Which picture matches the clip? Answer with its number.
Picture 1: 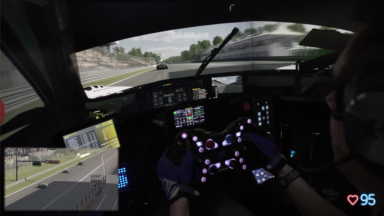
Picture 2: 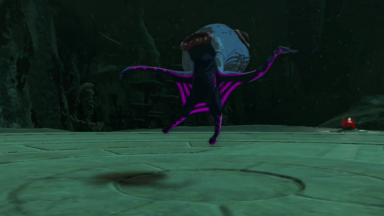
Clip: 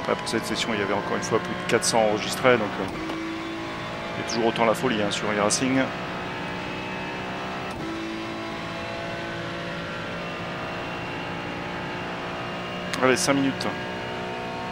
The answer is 1